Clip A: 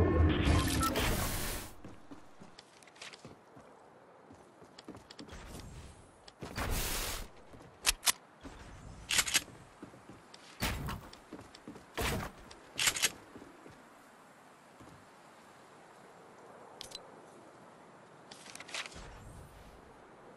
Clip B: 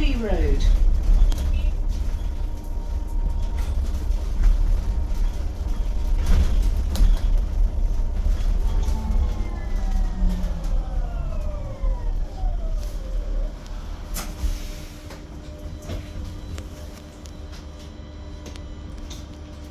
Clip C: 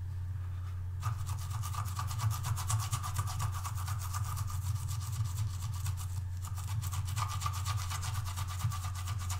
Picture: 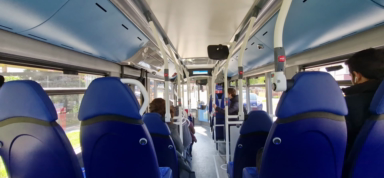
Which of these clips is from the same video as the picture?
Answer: B